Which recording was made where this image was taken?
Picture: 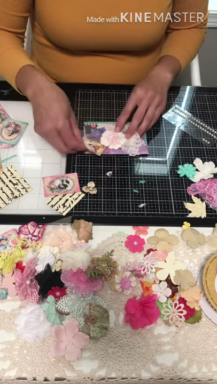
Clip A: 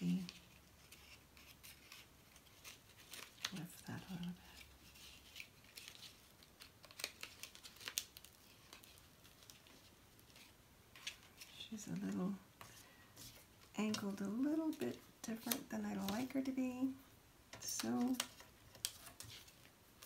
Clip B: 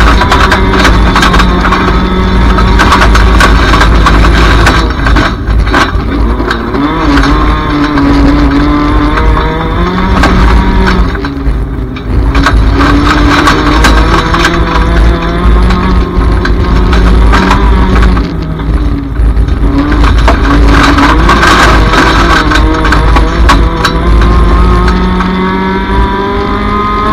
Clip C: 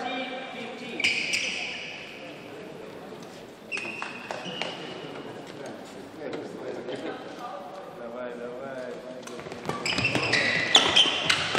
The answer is A